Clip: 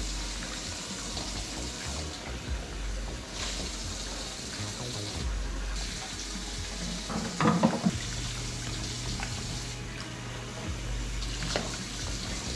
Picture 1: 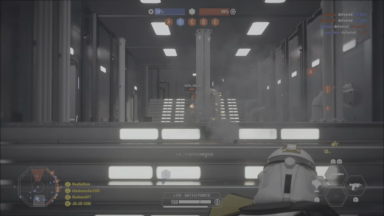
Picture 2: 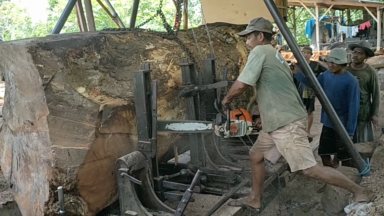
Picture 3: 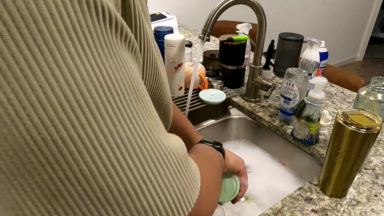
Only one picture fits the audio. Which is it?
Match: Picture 3